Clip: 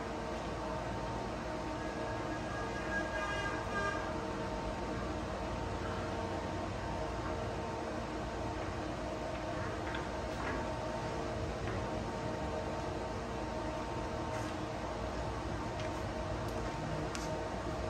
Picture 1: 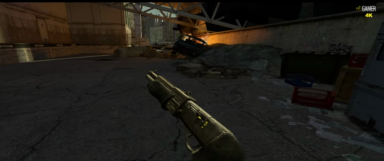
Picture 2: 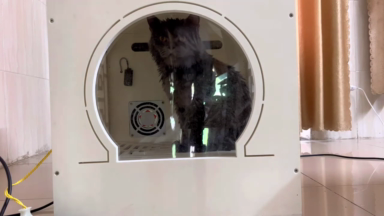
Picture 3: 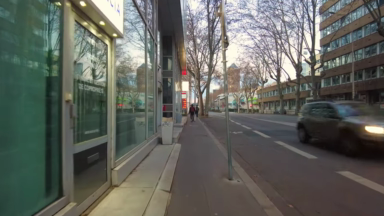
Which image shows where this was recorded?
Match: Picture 2